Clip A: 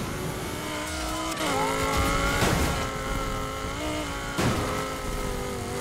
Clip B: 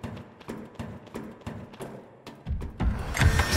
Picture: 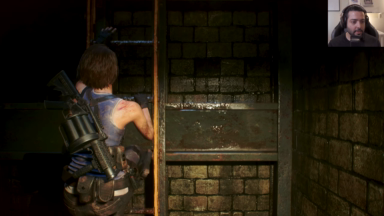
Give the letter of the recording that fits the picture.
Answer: B